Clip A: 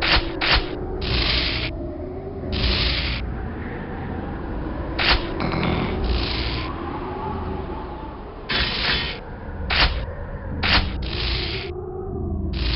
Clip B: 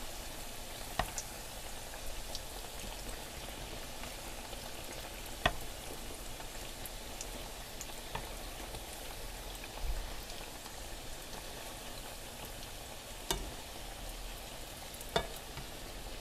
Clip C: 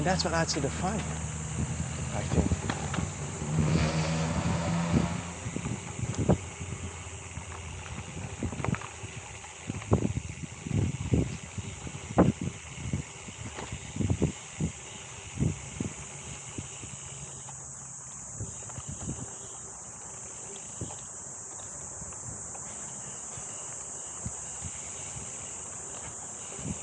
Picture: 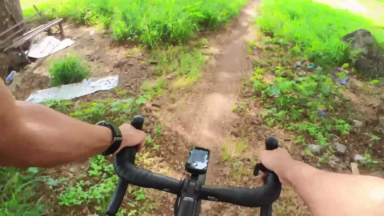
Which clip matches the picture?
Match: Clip C